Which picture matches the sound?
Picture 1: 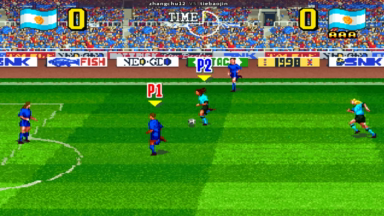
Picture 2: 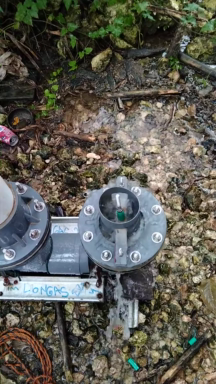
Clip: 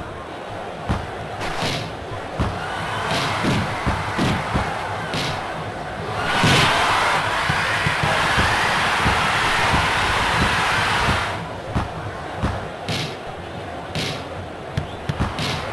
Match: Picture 1